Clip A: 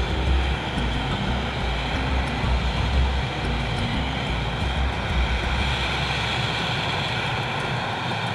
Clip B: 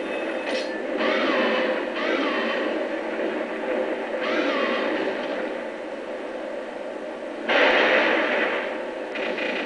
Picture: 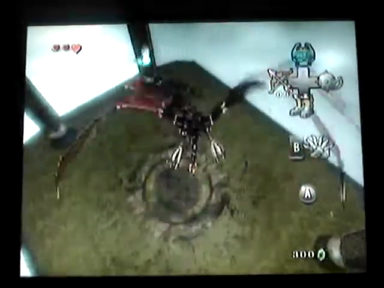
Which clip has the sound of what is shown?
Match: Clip B